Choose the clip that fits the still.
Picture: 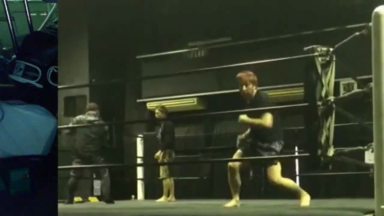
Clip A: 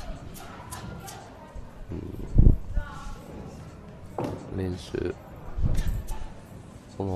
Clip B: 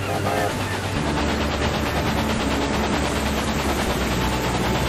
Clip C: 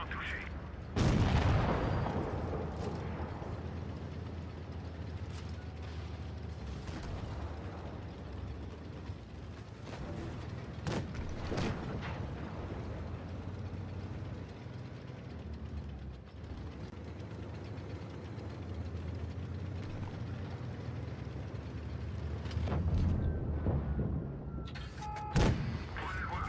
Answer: A